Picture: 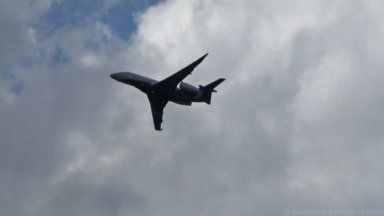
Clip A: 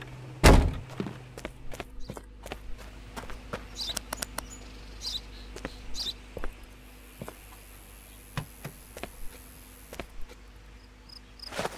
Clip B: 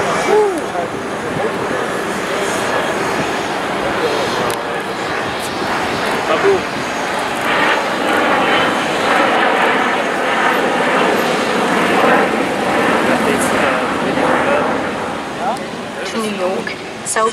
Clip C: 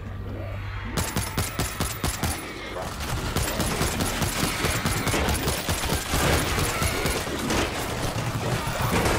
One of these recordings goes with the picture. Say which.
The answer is B